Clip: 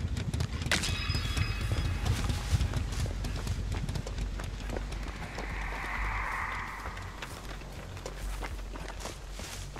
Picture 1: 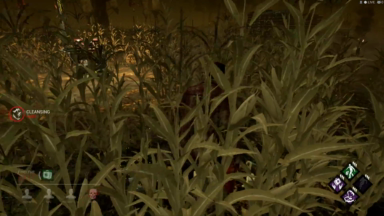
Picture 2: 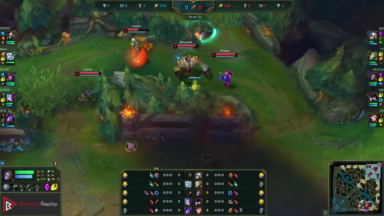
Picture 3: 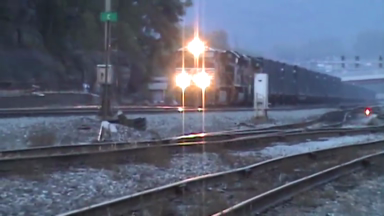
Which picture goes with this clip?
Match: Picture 1